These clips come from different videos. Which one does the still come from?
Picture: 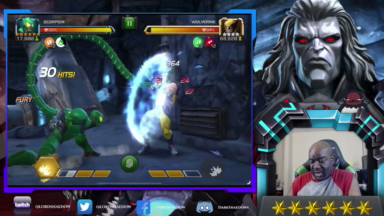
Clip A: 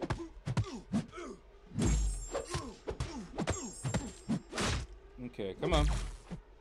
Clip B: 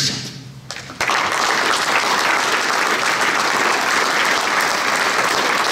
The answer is A